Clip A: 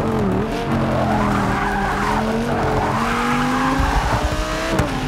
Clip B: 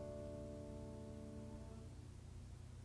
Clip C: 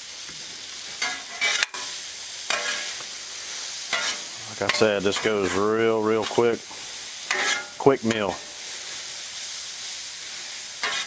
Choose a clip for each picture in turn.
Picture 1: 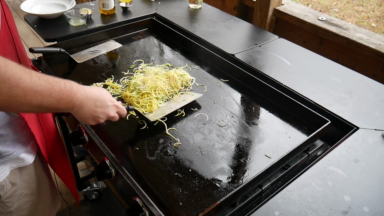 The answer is C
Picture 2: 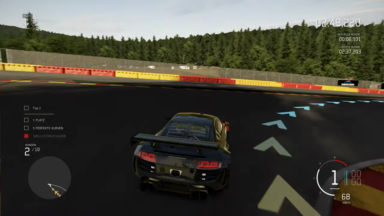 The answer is A